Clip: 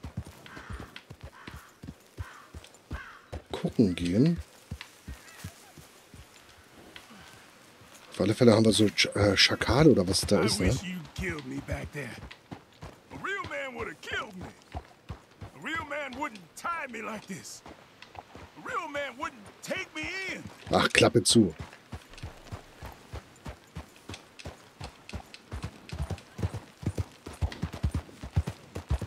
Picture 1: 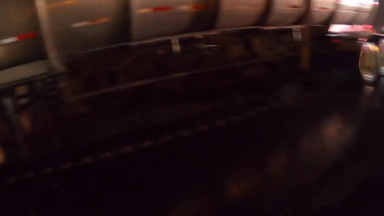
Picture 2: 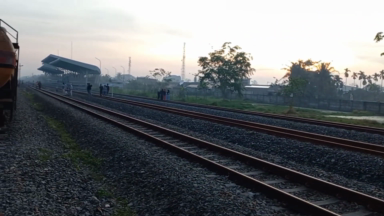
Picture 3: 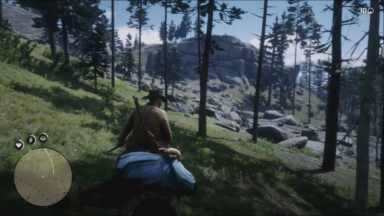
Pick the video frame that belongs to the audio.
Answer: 3